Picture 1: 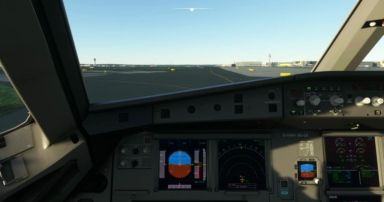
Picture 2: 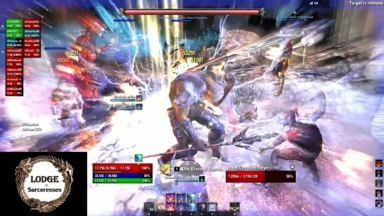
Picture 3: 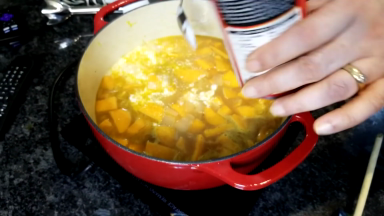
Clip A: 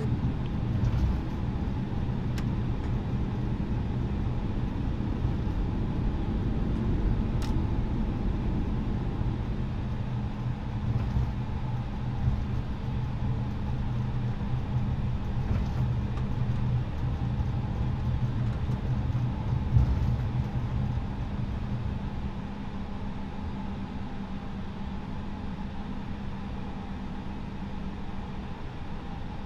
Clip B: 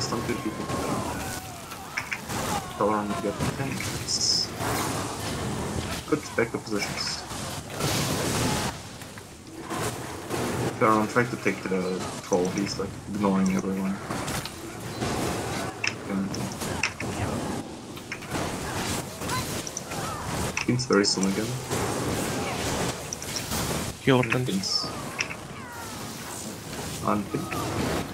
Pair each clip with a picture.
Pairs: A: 1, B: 2